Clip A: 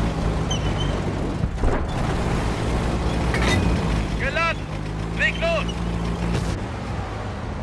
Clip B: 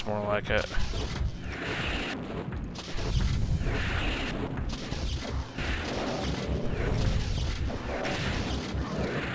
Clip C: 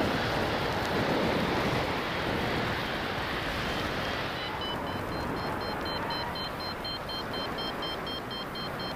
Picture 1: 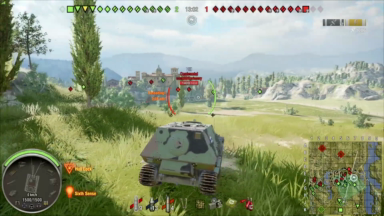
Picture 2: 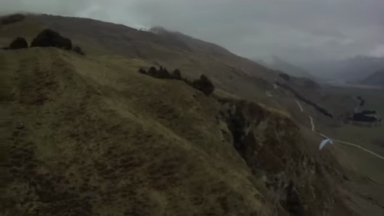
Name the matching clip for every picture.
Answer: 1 A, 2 C